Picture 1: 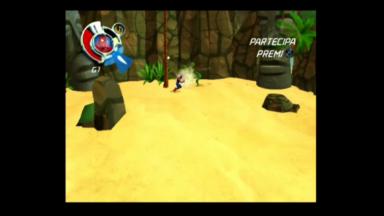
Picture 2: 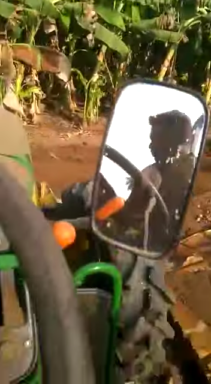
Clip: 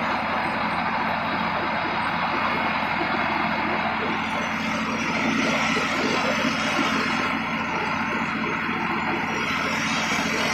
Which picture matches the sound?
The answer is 2